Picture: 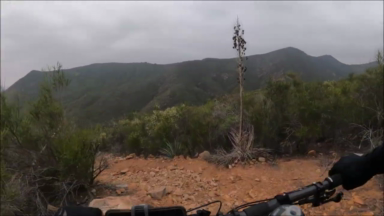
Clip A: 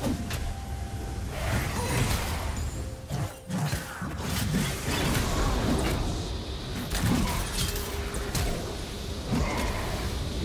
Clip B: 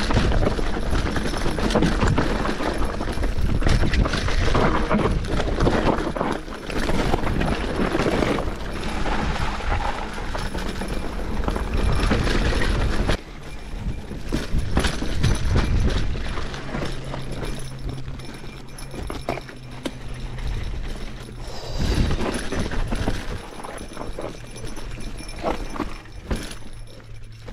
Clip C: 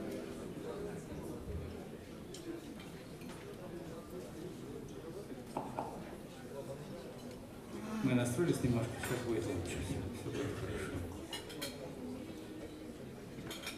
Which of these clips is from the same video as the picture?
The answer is B